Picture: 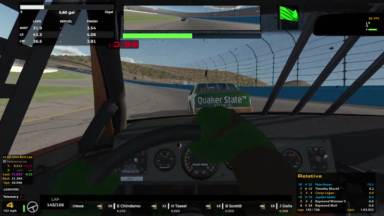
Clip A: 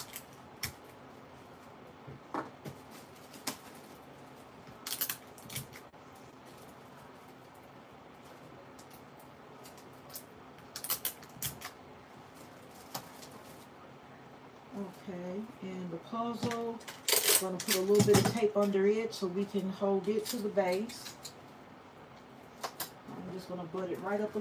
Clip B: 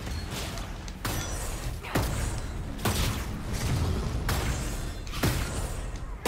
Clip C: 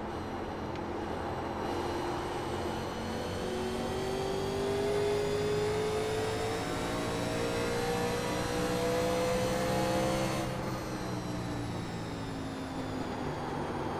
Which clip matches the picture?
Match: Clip C